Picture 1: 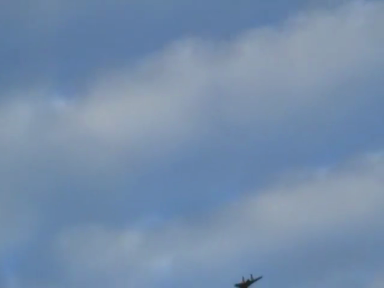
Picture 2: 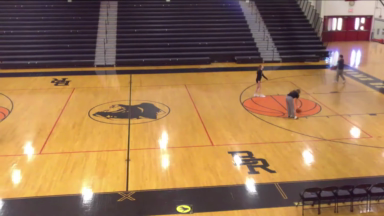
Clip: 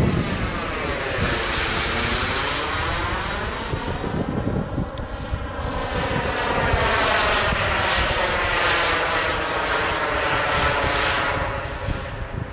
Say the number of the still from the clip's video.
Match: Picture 1